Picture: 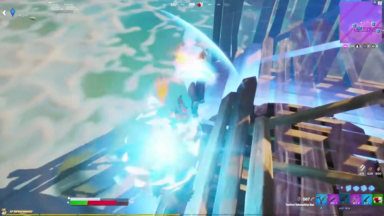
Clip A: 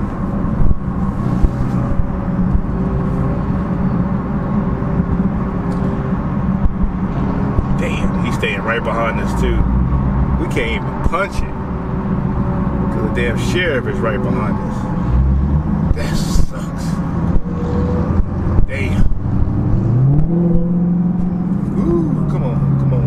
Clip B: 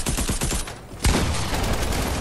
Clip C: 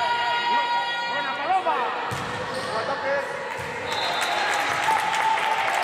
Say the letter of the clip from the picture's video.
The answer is B